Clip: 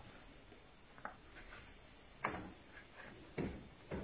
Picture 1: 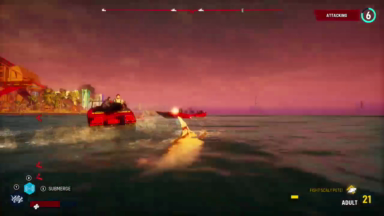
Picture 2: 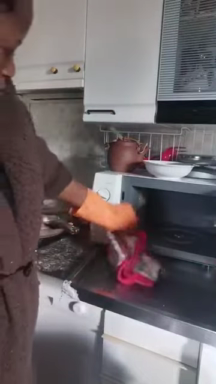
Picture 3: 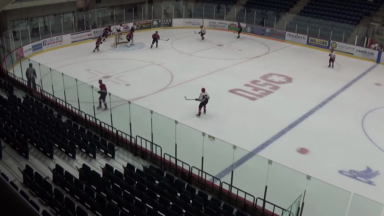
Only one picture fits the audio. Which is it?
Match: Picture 2